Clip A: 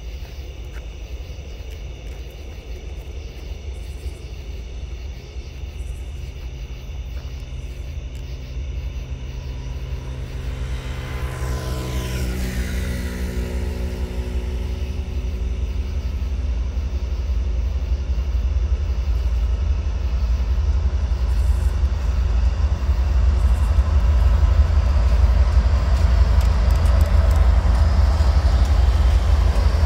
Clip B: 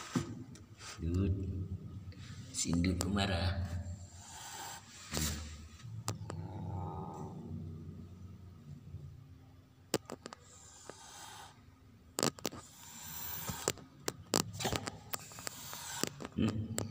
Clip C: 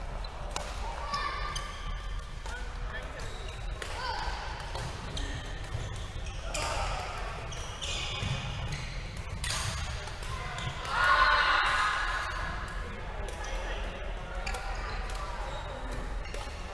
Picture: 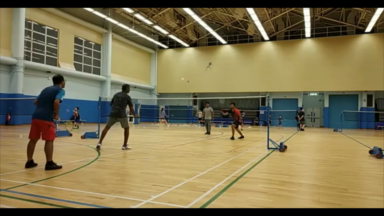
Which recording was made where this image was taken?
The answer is C